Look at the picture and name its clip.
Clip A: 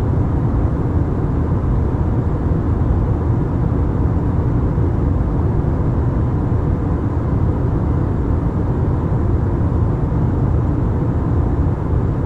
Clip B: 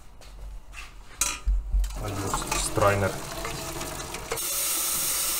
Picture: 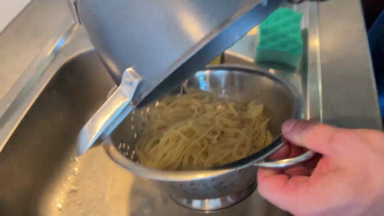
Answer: B